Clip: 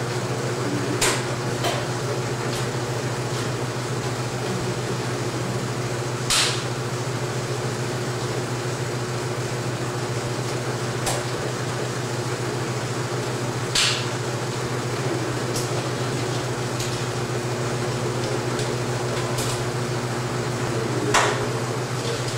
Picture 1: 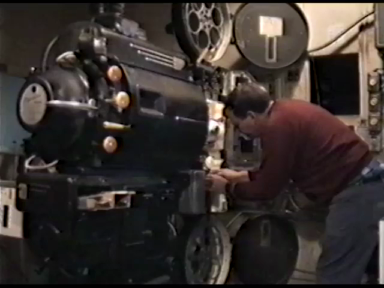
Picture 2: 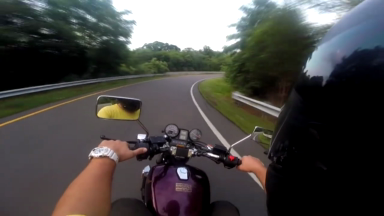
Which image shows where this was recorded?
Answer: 1